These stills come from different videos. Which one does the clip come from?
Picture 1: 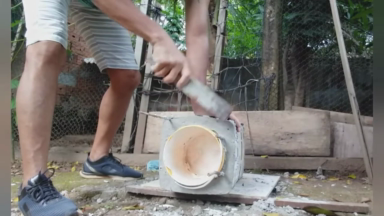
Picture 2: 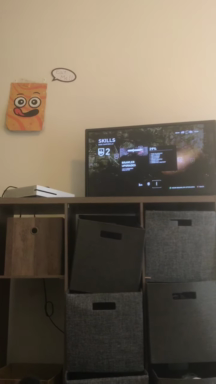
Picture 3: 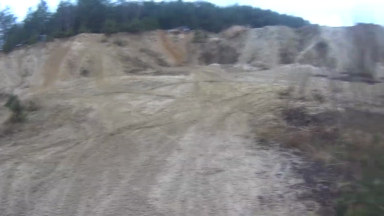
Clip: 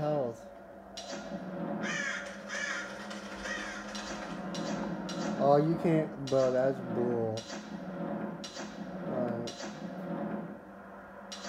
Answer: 2